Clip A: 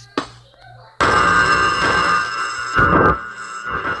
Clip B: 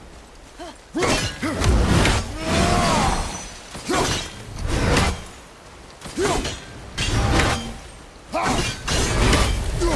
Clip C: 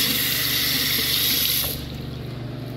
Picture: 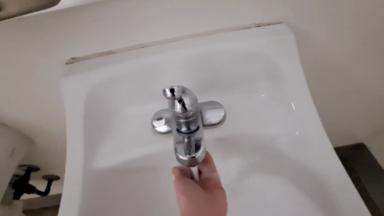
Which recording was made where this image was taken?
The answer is C